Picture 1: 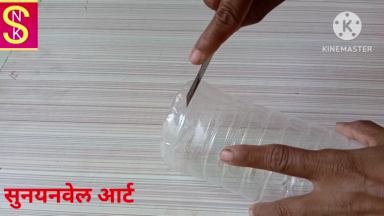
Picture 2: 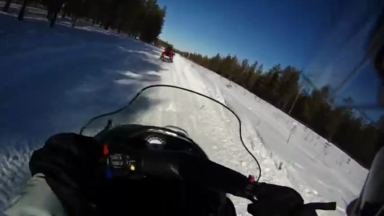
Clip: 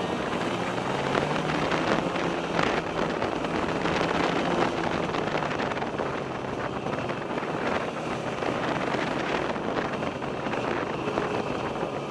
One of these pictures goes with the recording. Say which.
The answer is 2